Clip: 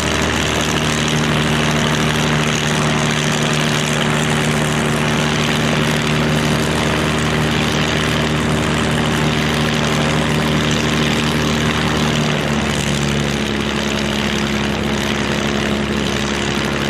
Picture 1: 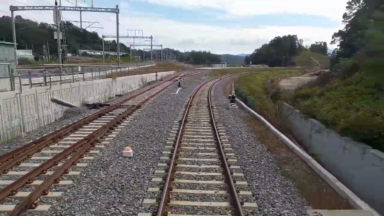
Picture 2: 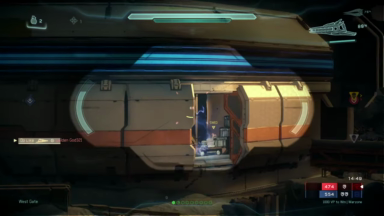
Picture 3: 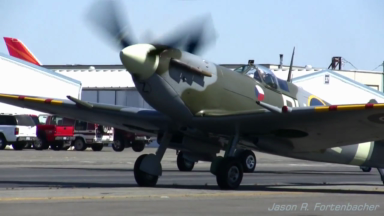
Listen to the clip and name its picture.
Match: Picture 3